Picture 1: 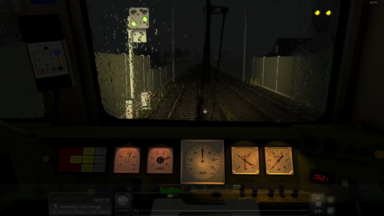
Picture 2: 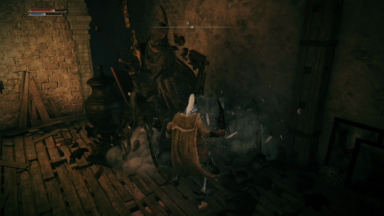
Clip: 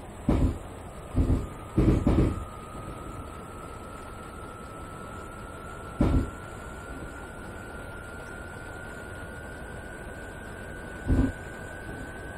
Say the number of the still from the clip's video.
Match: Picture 1